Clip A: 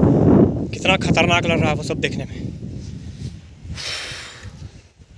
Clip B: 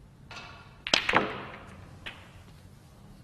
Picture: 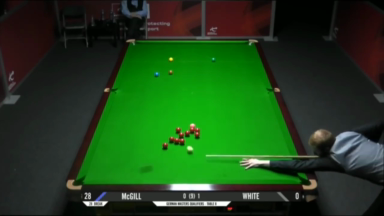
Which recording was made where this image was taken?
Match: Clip B